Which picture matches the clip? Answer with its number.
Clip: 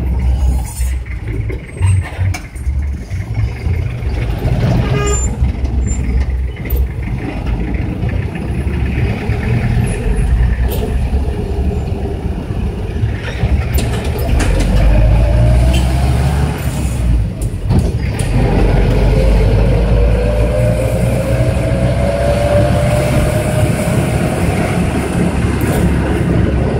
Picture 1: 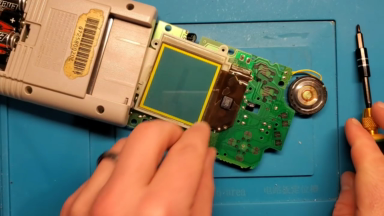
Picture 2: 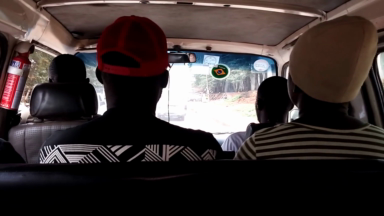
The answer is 2